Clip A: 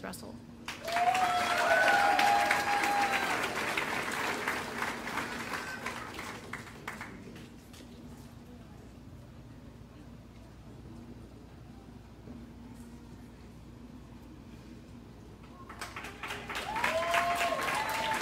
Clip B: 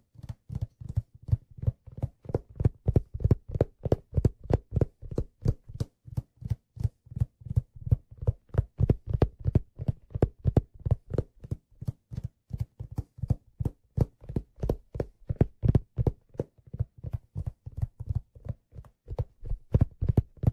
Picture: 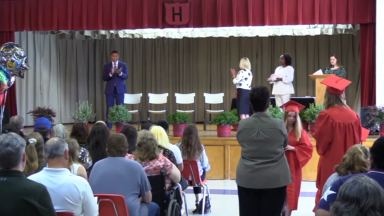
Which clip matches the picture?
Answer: A